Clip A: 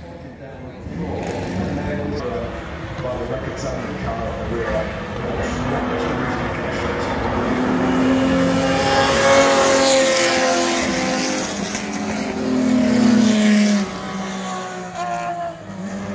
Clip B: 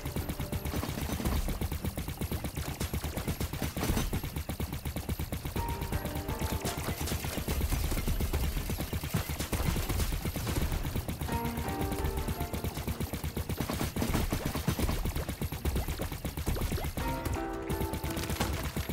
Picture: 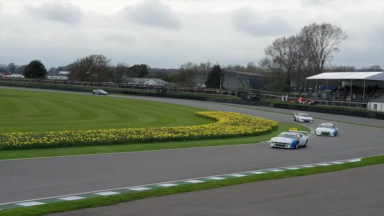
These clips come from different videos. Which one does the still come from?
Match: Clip A